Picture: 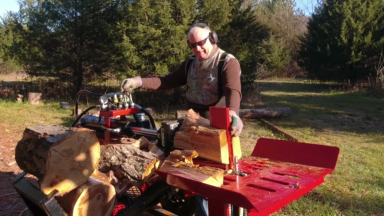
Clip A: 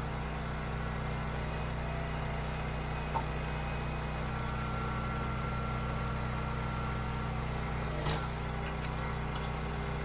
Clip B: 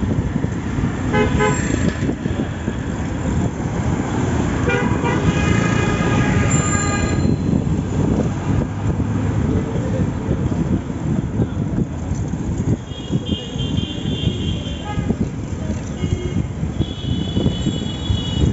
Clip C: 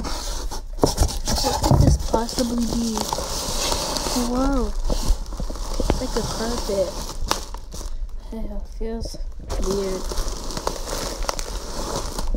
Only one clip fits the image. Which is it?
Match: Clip A